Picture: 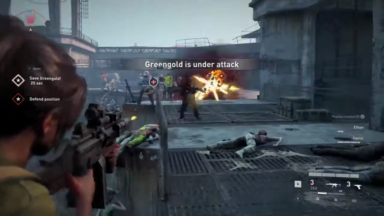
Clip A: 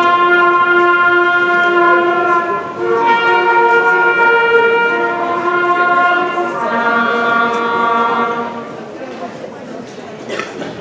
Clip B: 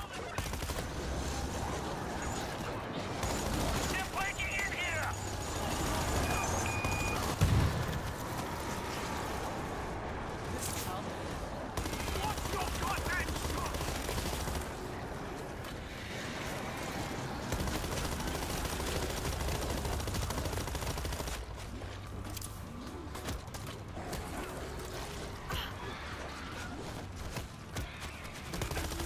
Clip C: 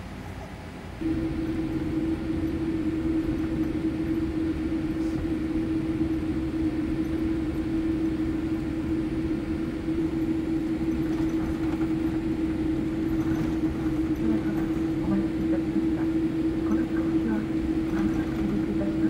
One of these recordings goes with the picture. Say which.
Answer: B